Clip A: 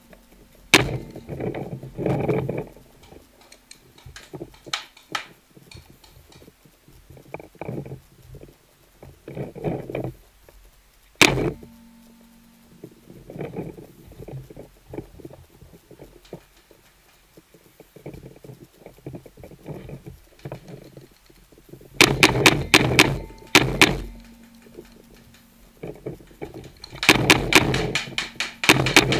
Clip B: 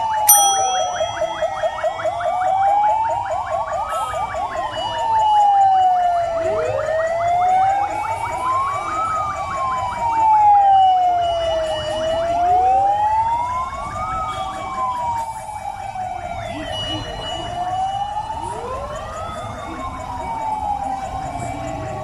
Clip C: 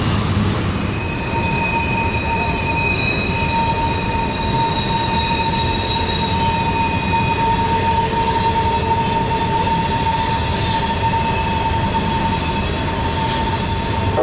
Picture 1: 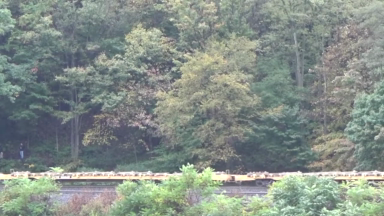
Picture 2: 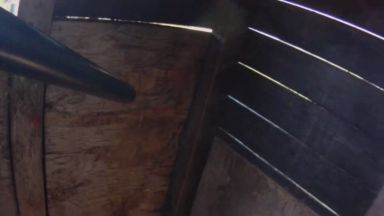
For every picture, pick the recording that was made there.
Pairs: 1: C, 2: A